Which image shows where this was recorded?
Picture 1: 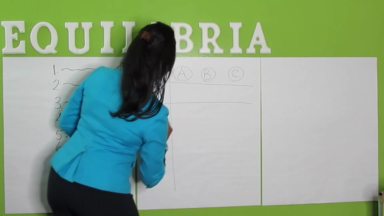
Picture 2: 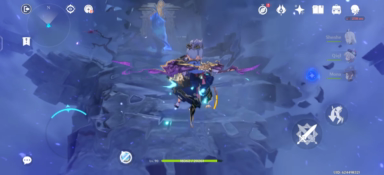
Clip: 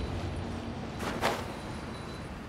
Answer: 2